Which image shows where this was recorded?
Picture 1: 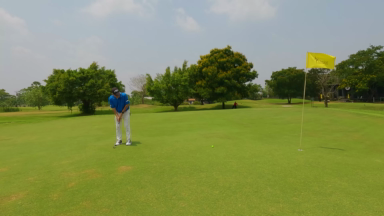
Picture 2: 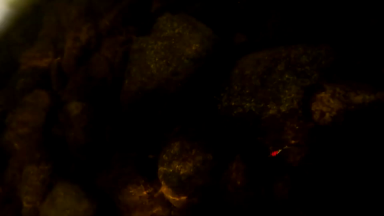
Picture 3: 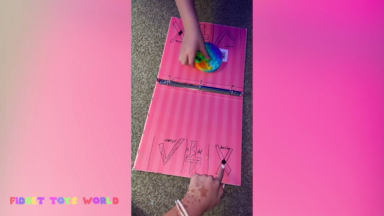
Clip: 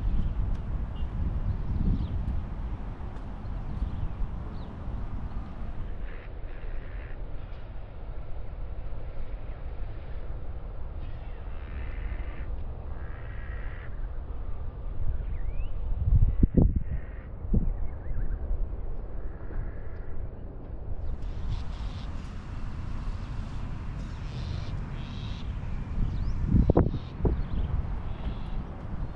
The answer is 1